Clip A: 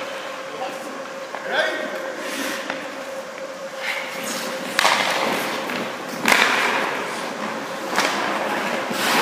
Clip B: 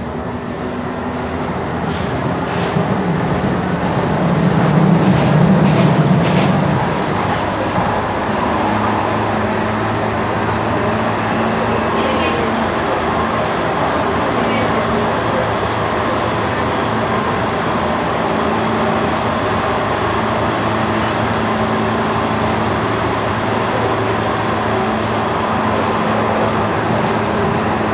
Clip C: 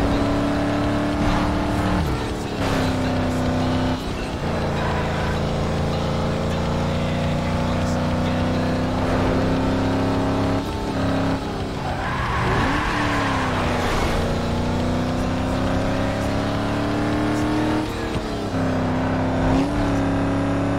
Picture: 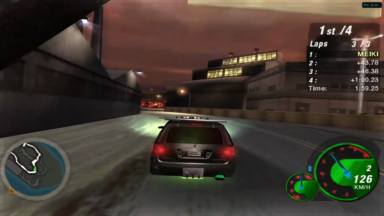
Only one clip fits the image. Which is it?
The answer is C